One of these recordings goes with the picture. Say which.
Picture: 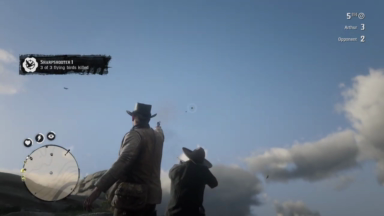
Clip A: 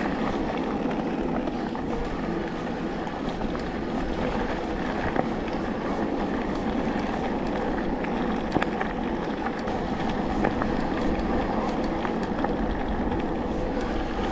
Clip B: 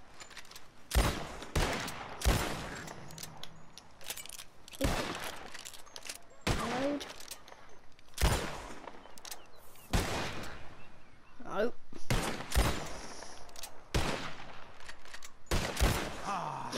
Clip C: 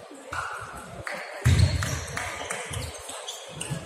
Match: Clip B